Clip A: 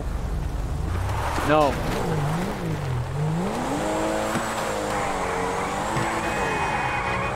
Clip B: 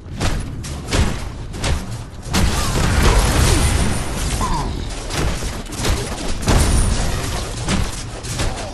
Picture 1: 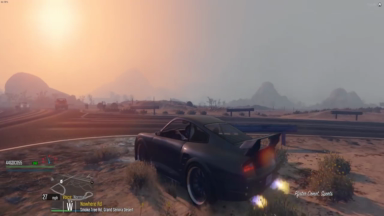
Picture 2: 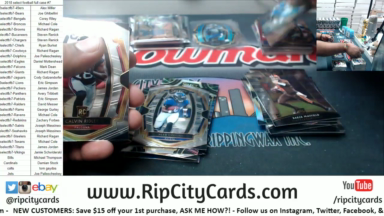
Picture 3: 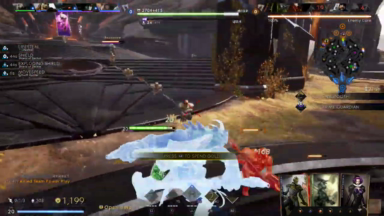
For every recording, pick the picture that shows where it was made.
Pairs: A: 1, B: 3